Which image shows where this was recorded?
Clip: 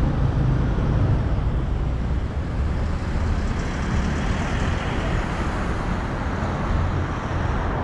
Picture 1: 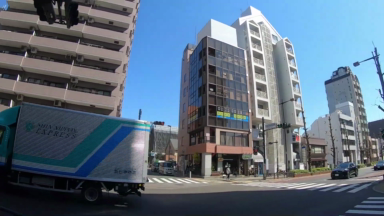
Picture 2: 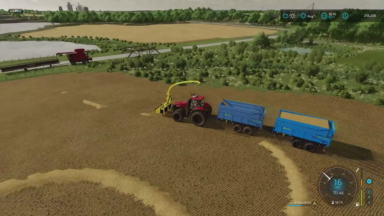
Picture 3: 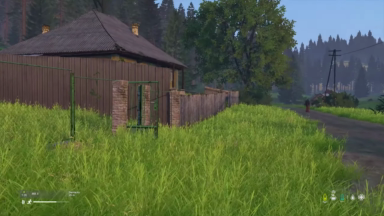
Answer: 1